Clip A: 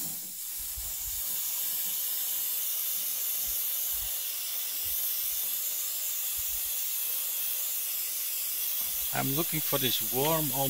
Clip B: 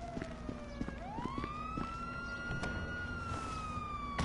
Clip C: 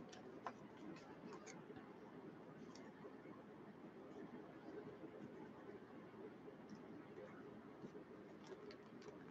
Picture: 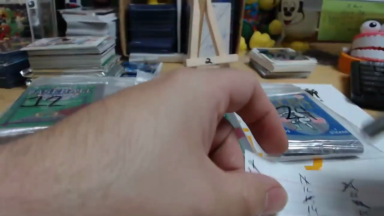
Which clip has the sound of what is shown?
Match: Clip C